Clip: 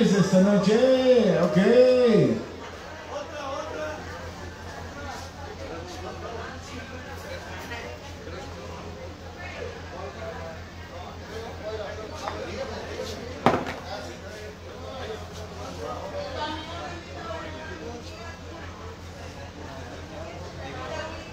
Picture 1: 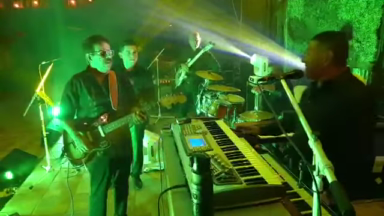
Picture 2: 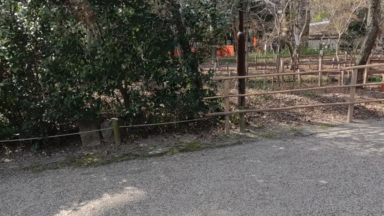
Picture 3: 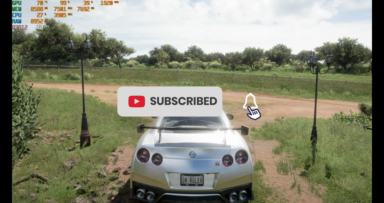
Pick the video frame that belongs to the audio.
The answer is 1